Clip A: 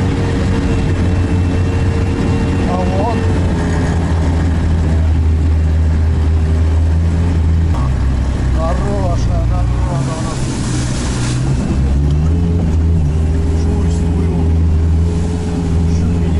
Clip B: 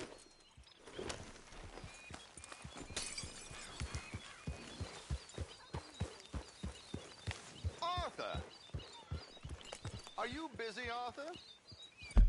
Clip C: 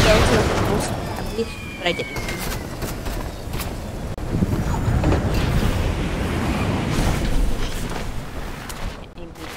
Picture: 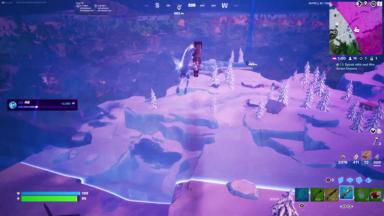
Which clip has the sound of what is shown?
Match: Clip C